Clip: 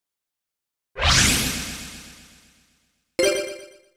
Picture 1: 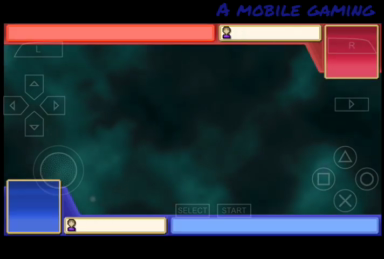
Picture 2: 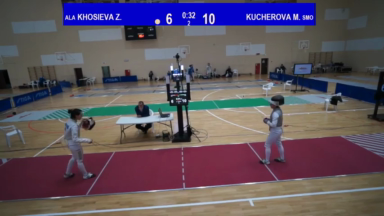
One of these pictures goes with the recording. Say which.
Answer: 1